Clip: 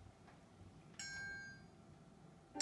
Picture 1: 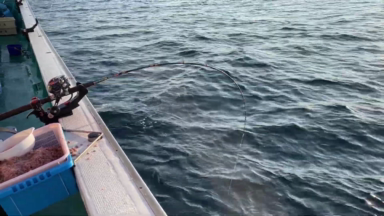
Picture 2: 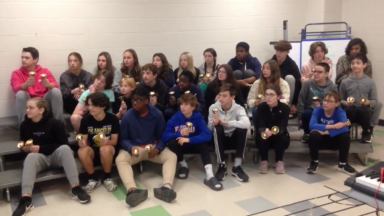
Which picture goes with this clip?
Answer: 2